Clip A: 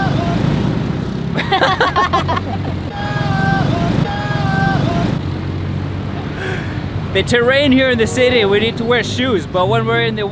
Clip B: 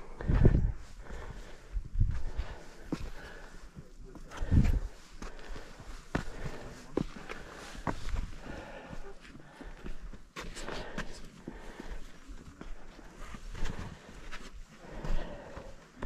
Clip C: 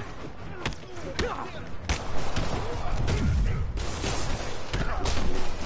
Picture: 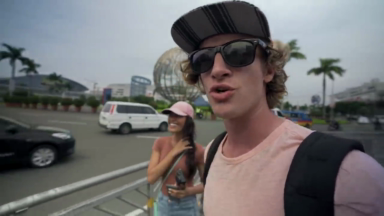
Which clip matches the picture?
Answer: A